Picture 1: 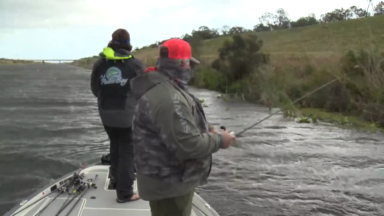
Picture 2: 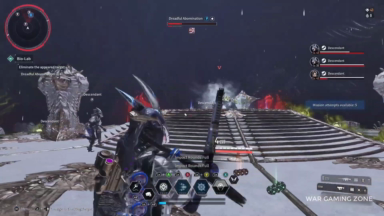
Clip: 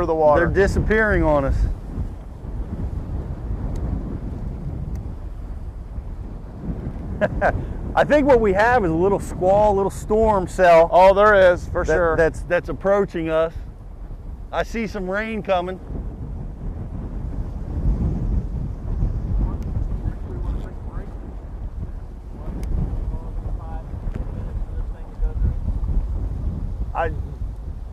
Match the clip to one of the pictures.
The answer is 1